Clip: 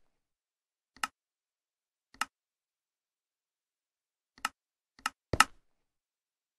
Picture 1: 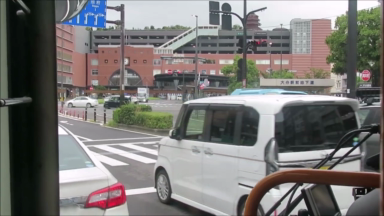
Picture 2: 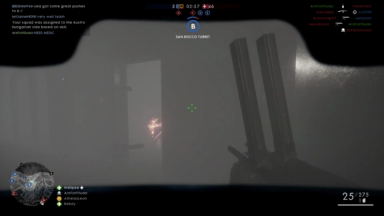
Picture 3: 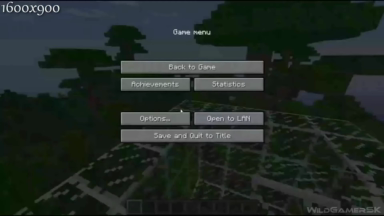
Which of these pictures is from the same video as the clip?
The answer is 3